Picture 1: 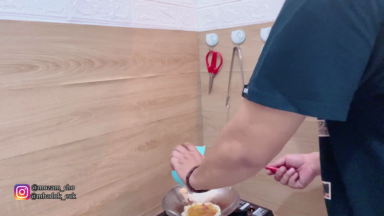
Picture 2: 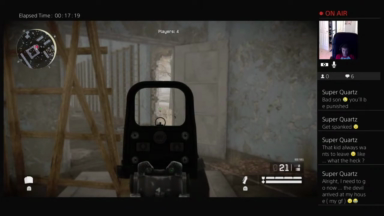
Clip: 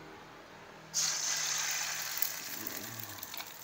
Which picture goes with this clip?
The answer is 1